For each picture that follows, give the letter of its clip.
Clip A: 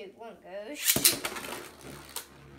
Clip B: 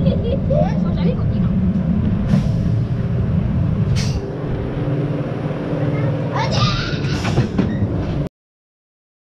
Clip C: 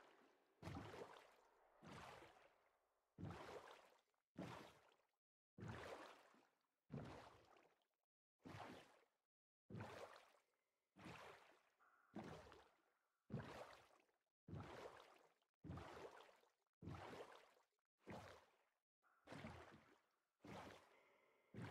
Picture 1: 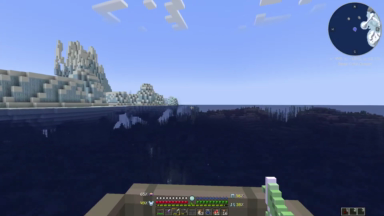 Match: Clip C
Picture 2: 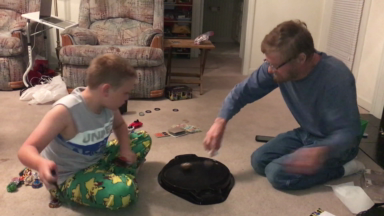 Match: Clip A